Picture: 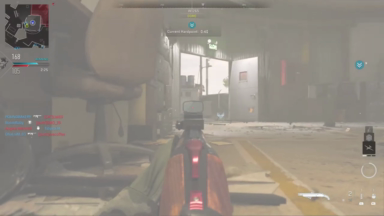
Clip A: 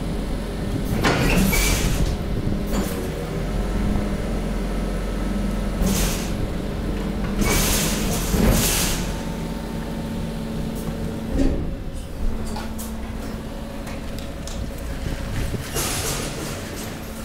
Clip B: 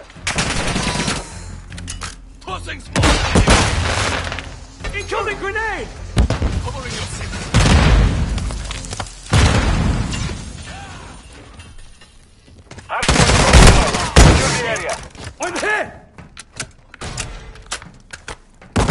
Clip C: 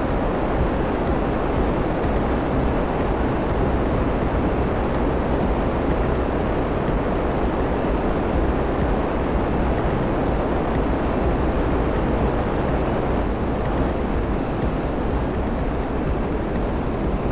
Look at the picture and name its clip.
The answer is B